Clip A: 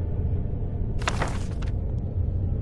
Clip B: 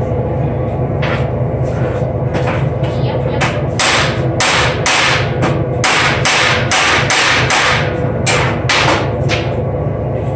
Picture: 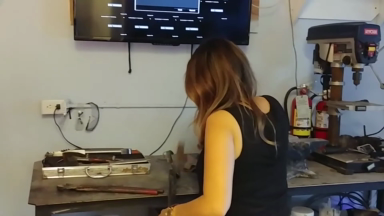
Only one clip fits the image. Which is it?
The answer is B